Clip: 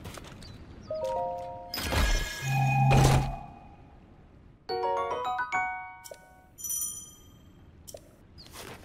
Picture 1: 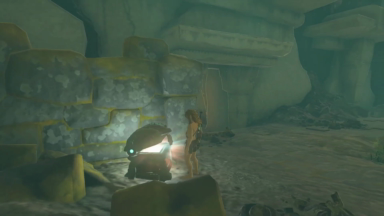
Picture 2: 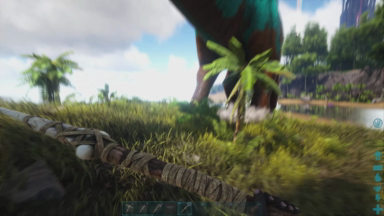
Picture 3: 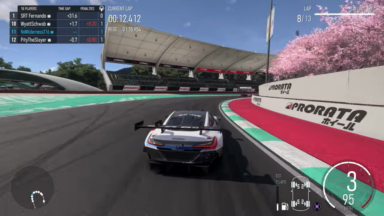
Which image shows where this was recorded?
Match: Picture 1